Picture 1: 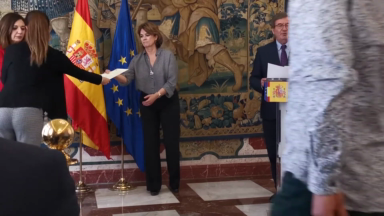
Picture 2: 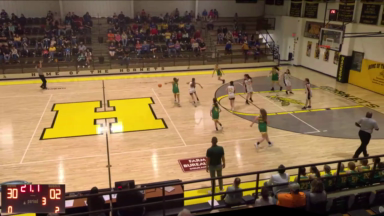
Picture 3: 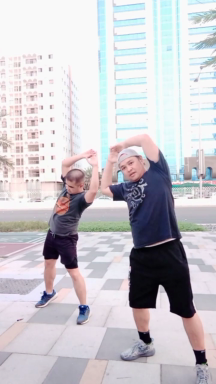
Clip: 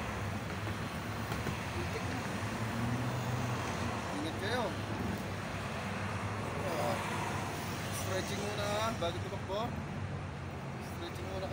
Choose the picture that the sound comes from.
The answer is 3